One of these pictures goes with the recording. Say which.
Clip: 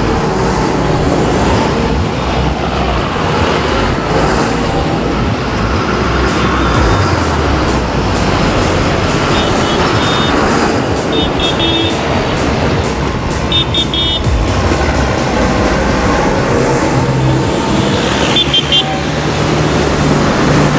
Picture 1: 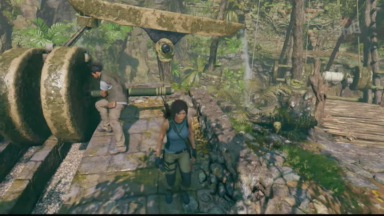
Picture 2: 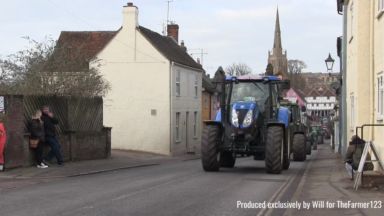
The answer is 2